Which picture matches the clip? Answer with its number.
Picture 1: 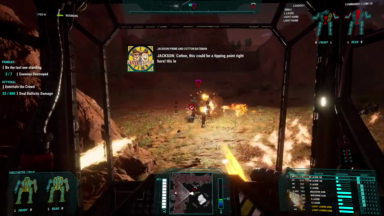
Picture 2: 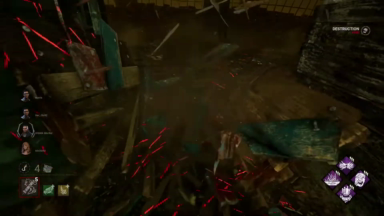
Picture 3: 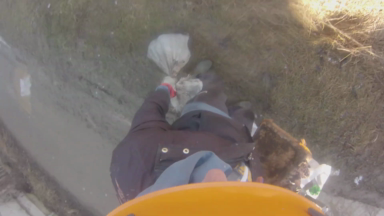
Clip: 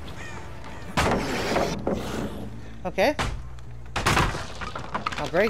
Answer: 2